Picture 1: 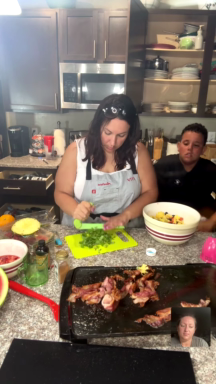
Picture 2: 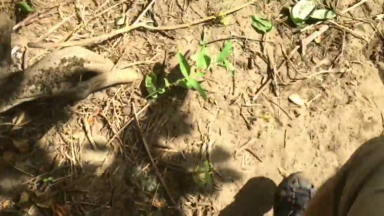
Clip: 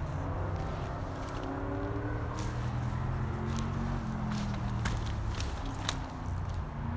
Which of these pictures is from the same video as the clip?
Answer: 2